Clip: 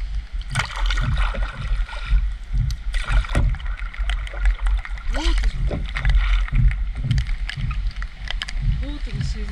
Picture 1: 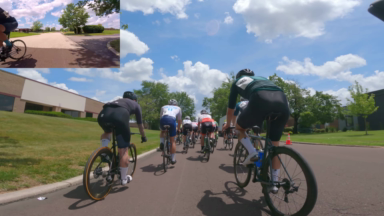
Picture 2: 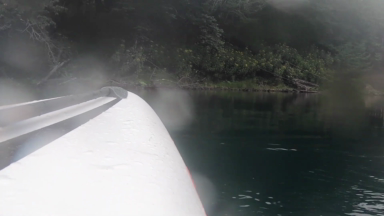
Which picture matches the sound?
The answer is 2